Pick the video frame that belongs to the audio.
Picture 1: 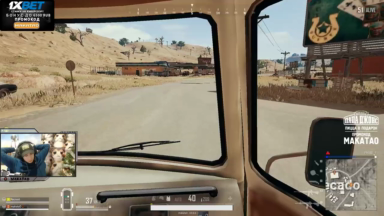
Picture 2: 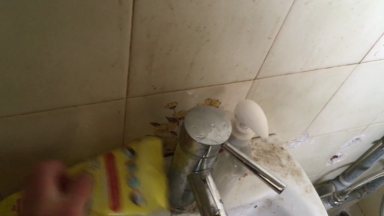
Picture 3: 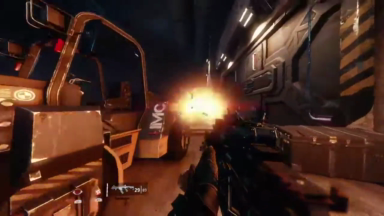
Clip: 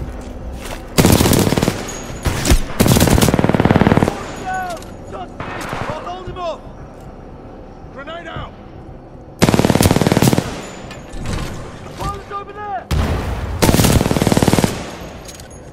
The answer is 3